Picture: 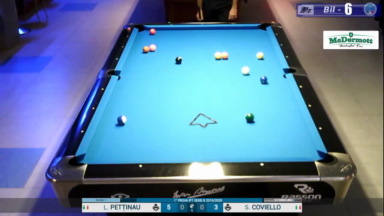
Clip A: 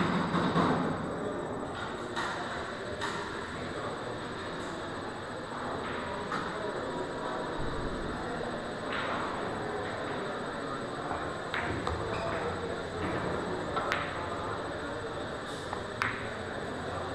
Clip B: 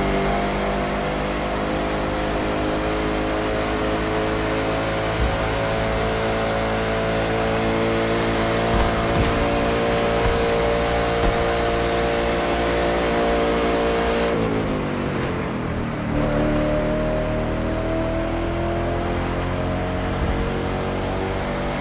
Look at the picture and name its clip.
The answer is A